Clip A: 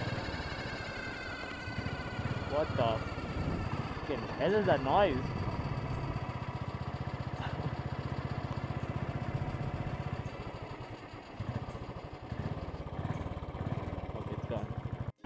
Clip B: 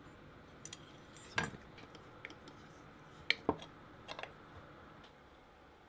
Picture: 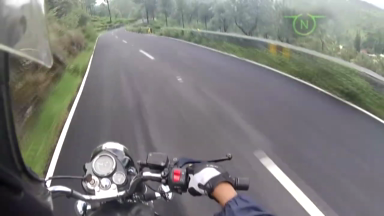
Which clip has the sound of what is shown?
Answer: A